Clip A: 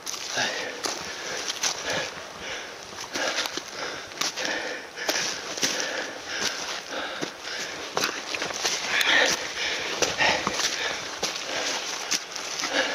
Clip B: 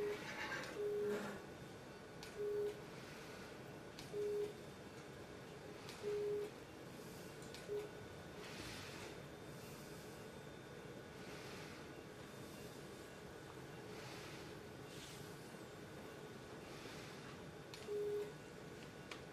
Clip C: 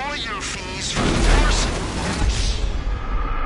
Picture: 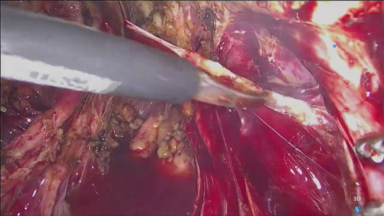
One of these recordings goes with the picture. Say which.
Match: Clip B